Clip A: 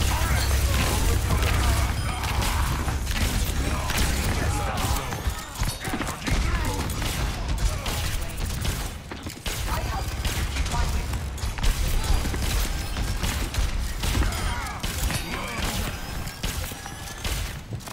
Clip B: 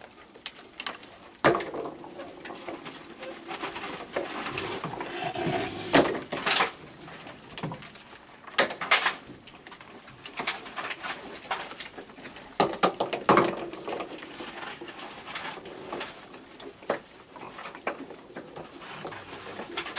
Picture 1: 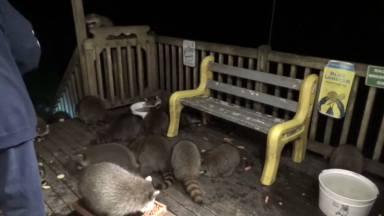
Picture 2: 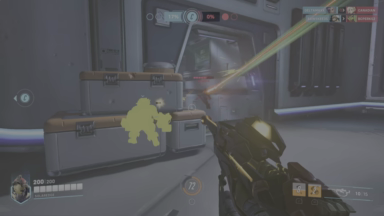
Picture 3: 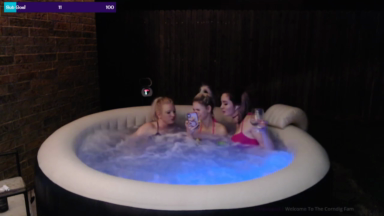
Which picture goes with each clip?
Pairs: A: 2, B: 1